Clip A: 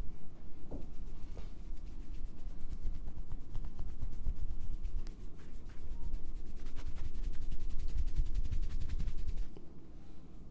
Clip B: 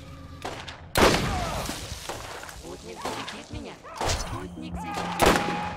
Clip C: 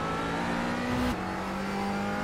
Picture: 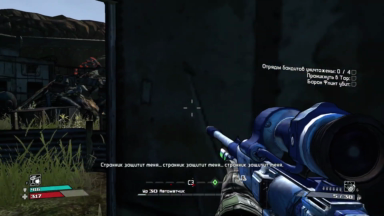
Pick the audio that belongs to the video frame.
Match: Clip B